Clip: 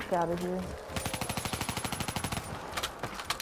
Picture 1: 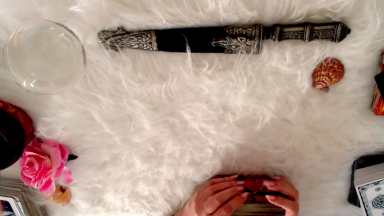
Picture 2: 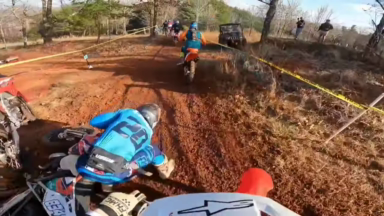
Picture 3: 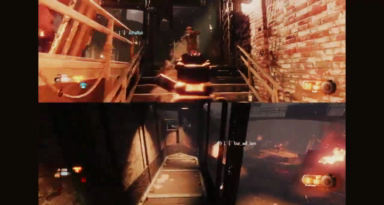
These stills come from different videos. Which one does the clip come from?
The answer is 3